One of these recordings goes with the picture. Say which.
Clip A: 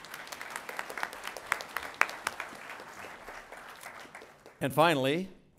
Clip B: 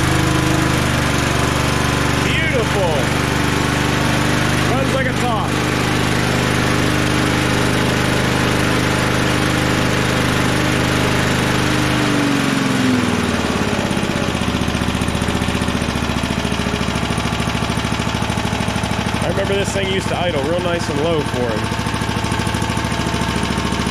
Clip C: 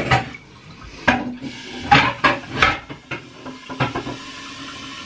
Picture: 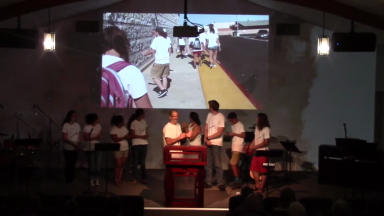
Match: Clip A